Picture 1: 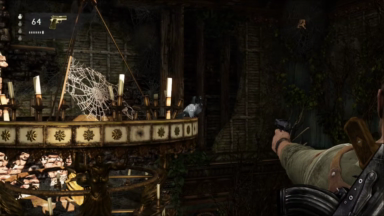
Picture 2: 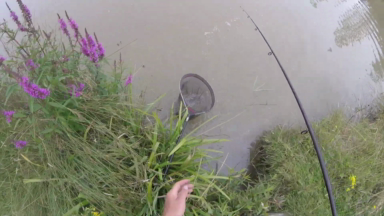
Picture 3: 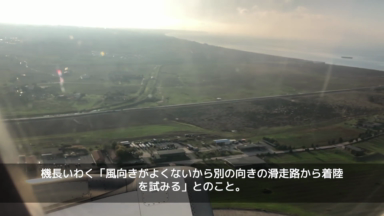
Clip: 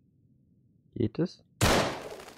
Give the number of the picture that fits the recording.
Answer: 1